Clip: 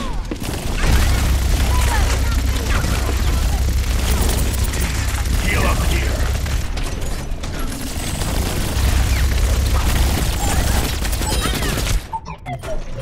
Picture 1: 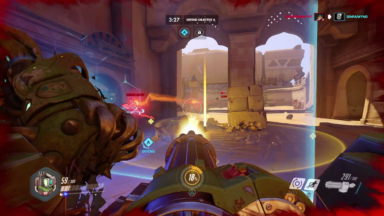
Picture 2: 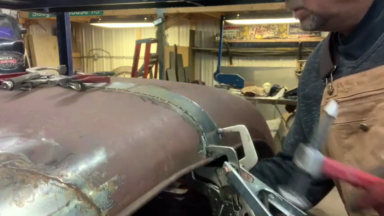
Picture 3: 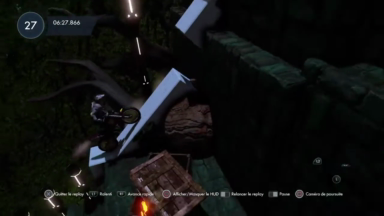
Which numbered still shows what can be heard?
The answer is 1